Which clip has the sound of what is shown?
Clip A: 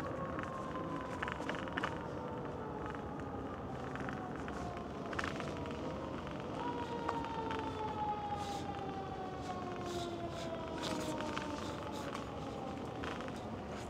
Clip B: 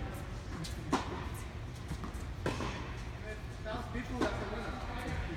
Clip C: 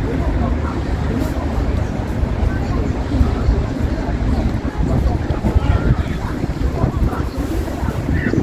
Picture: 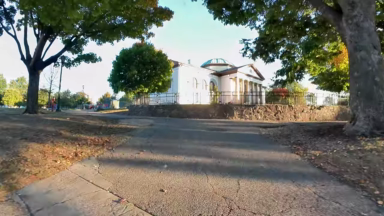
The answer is A